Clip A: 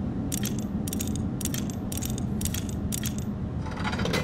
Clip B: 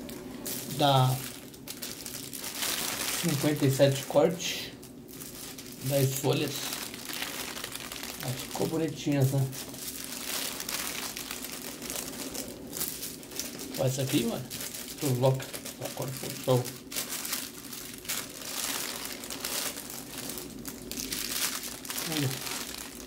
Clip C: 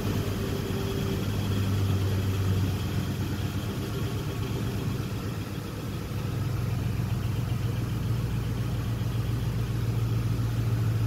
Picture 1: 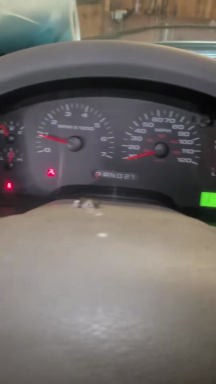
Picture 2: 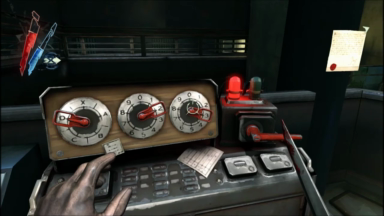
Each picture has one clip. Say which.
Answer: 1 C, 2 A